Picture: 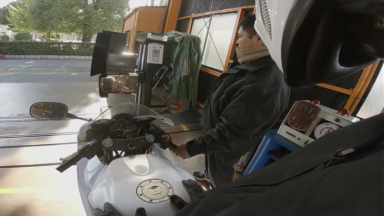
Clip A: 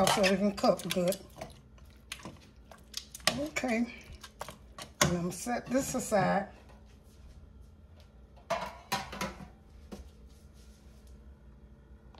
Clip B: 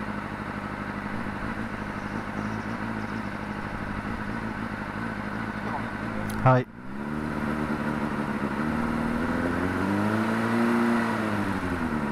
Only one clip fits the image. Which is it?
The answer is B